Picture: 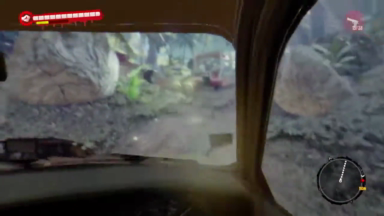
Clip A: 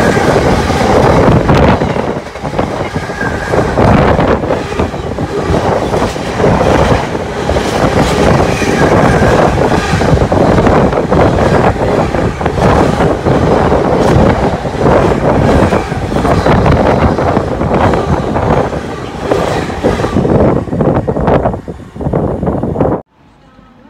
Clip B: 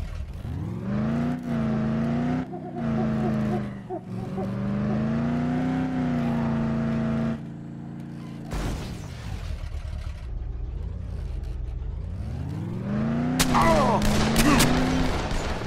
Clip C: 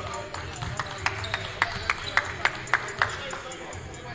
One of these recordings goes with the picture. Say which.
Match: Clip B